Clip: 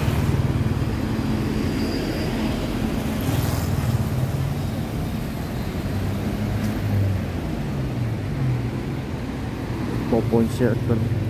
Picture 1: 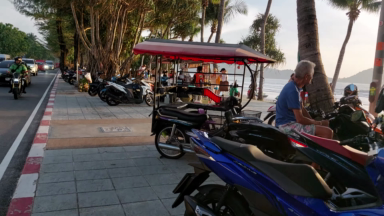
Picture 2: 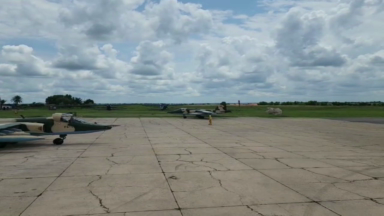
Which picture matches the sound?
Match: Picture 1